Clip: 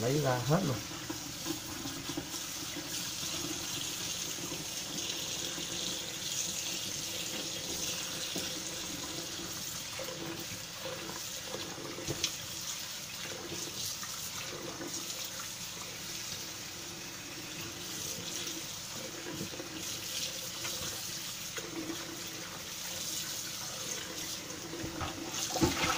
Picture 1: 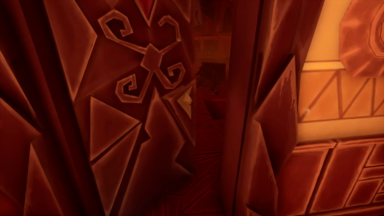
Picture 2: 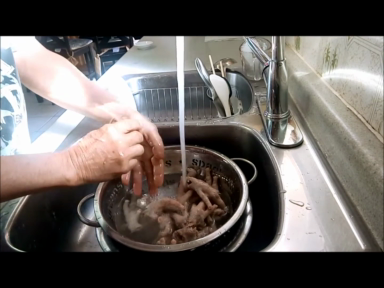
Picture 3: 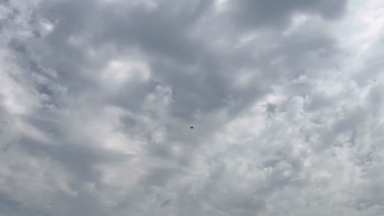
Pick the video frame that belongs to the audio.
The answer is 2